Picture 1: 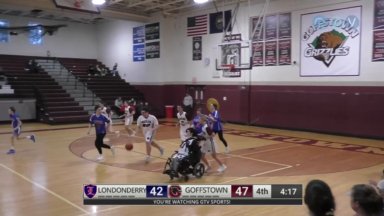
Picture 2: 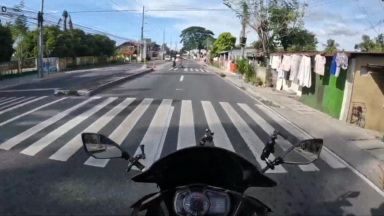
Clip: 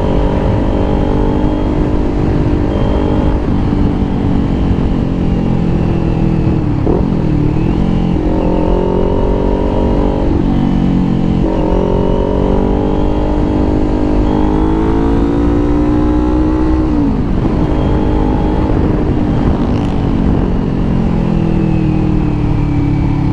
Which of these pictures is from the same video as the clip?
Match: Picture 2